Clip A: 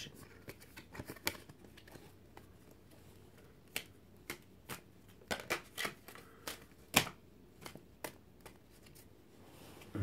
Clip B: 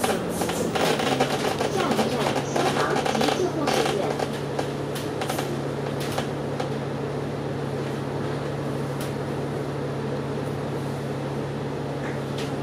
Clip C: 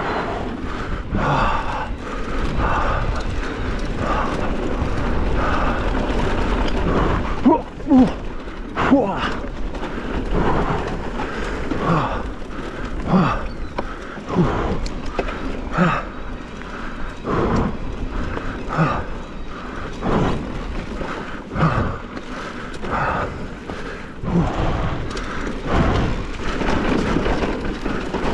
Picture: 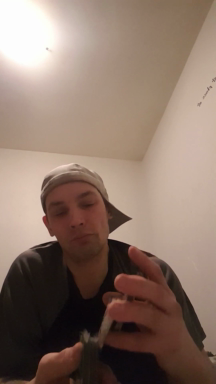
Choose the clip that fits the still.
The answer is A